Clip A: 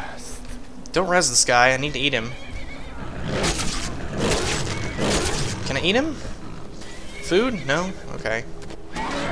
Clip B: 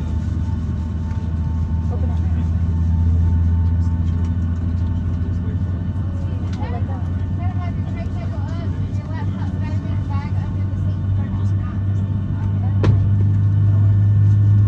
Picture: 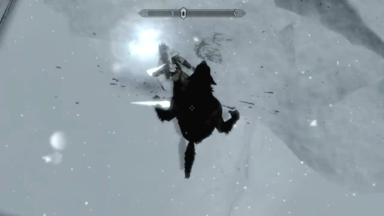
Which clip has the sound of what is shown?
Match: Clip A